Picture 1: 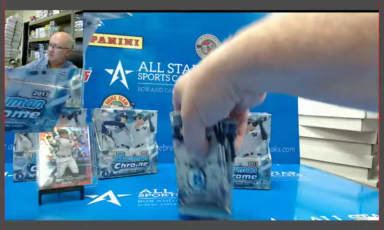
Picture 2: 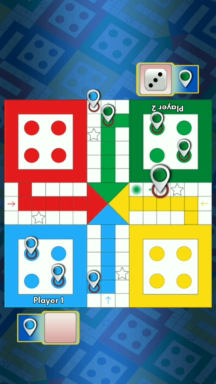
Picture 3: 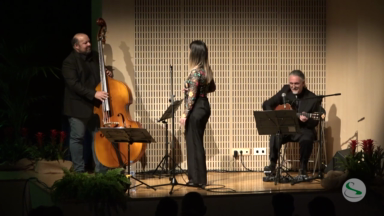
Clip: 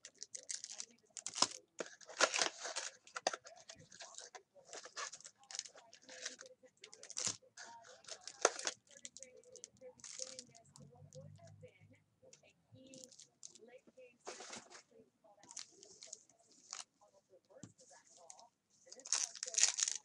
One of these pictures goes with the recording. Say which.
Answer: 1